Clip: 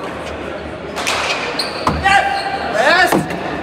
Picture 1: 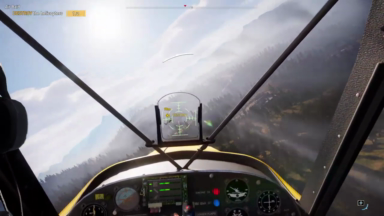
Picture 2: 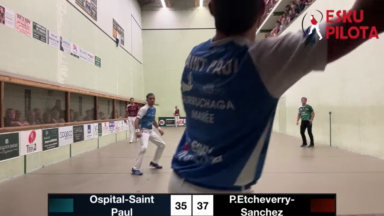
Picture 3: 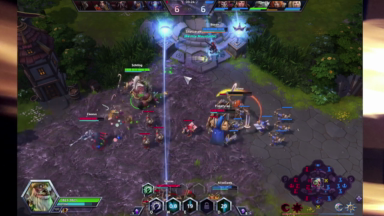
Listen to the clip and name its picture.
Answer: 2